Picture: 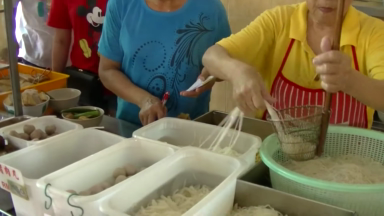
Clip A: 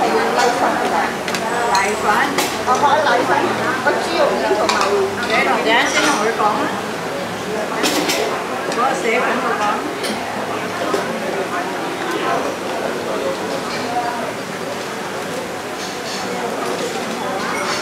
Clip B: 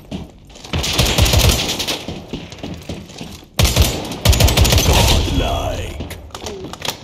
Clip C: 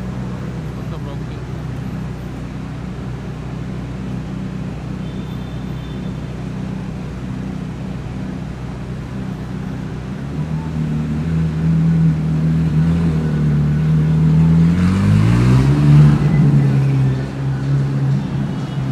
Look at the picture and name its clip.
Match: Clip A